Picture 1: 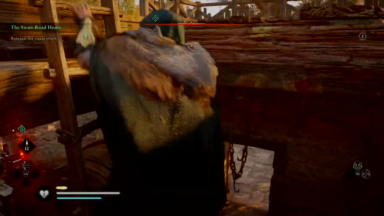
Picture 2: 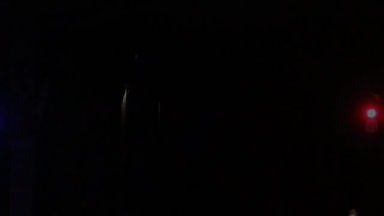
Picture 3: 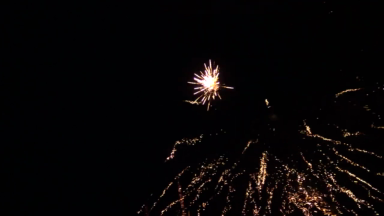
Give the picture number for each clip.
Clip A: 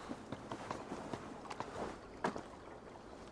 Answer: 1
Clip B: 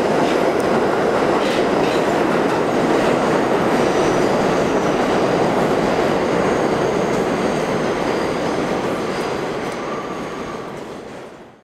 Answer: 2